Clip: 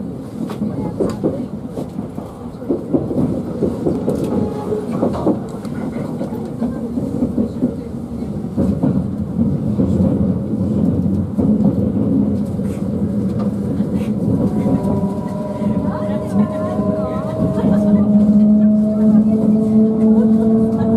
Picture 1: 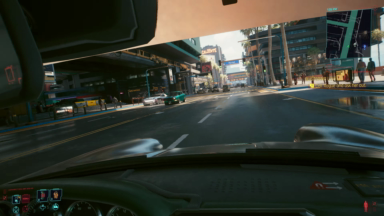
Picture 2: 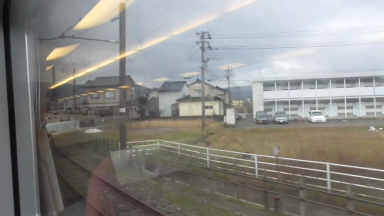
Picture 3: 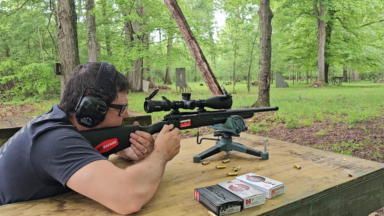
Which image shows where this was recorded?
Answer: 2